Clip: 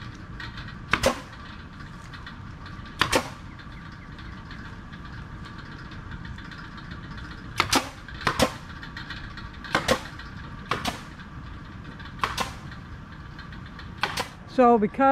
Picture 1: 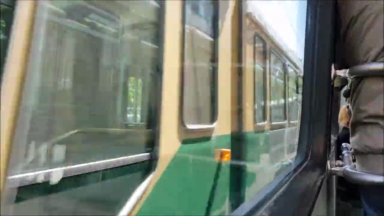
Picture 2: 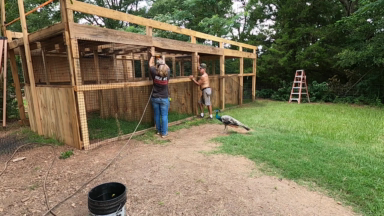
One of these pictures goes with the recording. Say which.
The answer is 2